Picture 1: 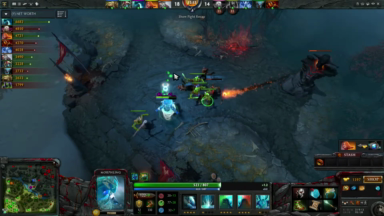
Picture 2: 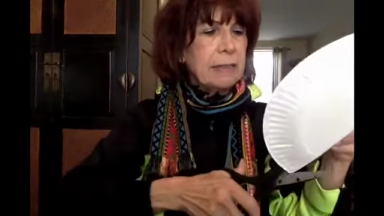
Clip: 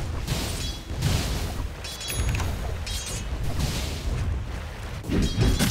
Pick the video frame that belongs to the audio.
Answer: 1